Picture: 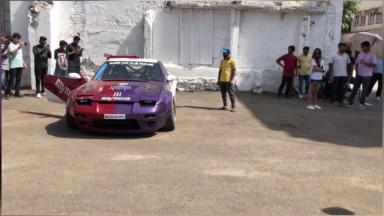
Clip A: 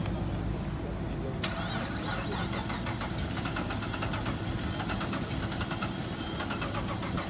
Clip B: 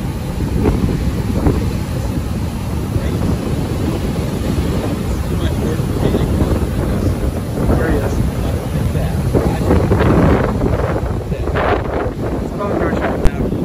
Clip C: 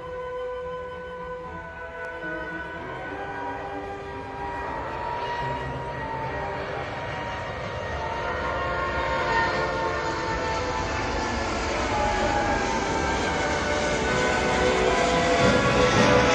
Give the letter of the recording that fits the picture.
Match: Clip A